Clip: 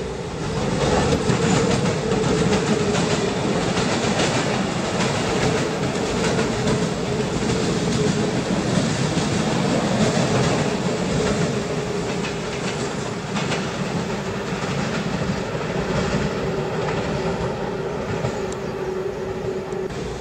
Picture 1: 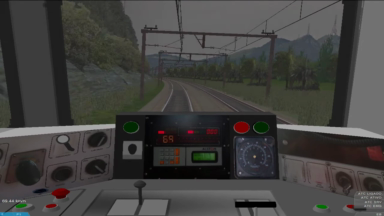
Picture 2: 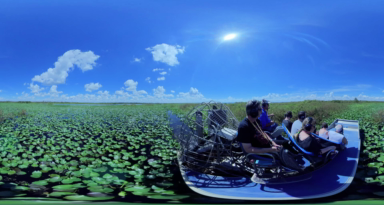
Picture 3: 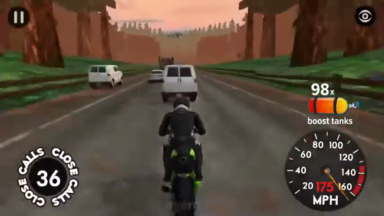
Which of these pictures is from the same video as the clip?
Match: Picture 1